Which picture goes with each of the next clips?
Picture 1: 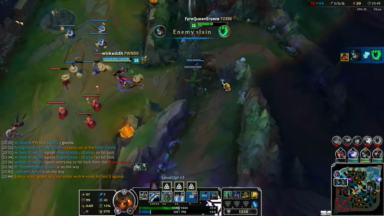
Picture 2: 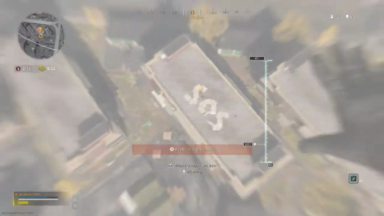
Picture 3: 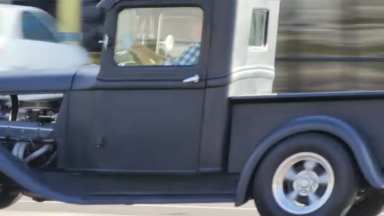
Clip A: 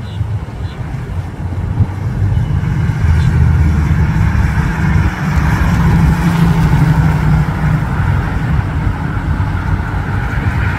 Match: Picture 3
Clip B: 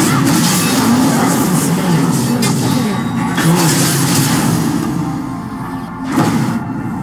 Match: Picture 1